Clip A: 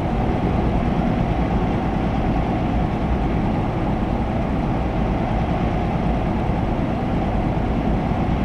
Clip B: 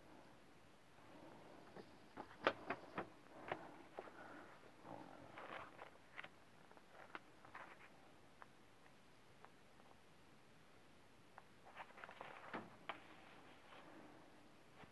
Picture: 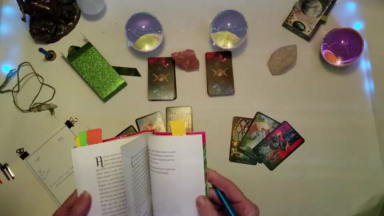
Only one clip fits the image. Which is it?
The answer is B